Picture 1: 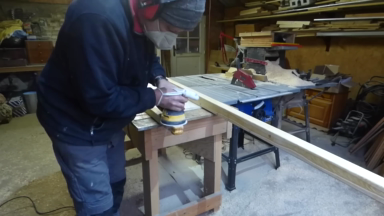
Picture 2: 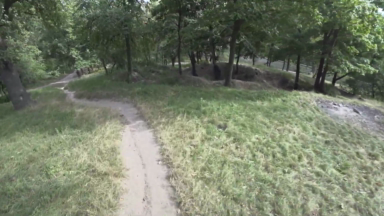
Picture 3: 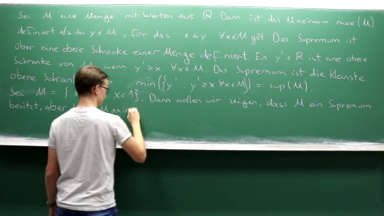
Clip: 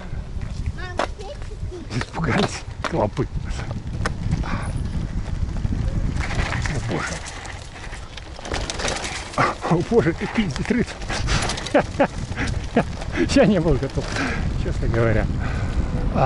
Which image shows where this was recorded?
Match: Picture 2